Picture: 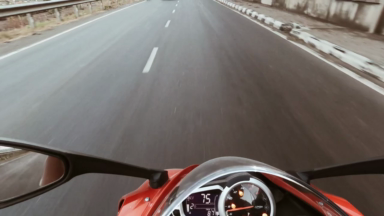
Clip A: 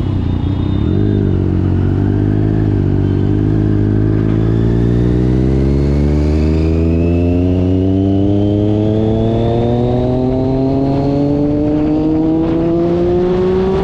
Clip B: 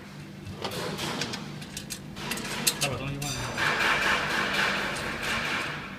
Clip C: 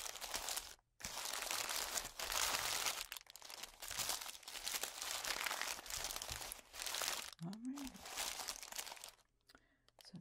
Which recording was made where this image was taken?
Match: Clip A